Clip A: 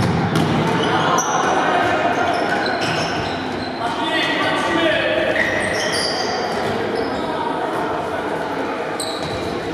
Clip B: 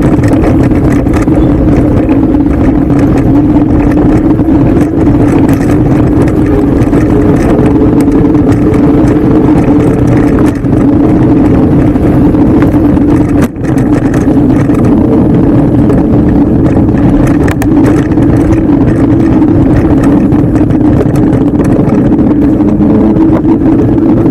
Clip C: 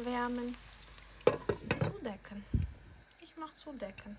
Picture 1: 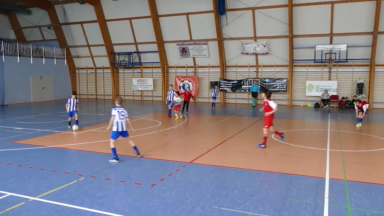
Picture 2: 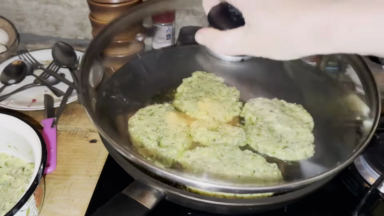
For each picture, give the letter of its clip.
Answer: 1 A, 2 C